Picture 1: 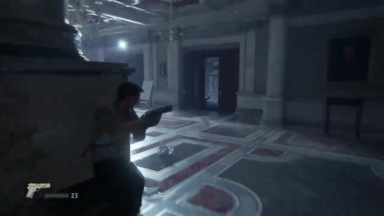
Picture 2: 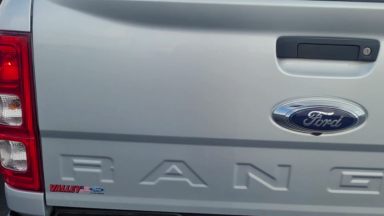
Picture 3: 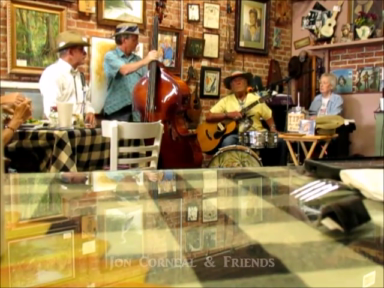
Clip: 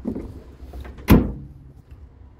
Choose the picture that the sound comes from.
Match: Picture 2